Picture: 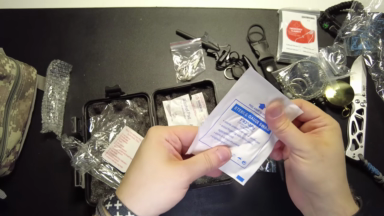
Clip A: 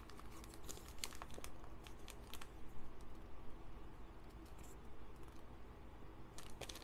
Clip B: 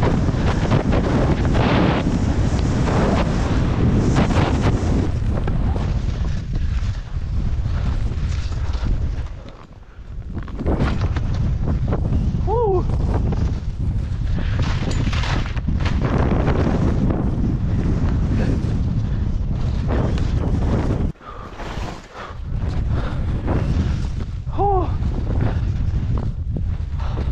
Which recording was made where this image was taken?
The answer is A